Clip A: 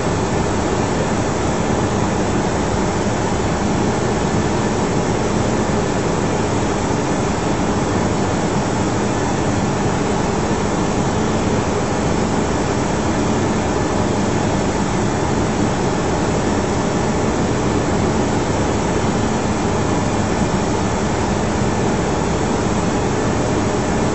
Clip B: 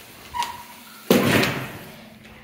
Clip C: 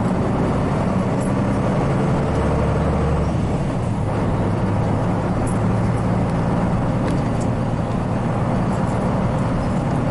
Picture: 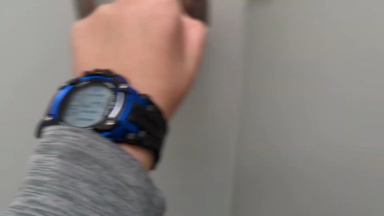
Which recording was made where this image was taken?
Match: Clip B